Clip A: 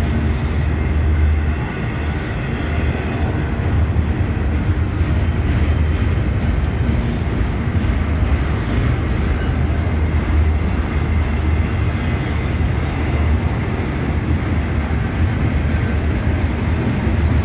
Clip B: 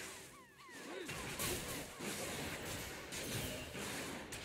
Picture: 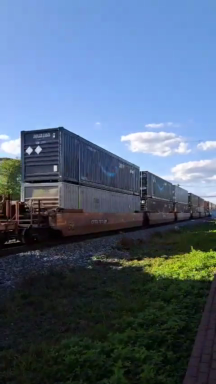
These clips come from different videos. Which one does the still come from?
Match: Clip A